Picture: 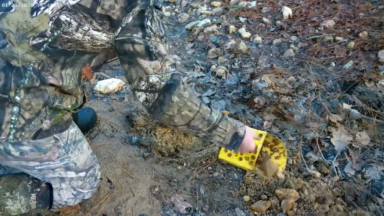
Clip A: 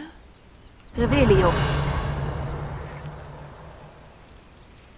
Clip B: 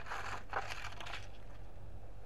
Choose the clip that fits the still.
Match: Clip B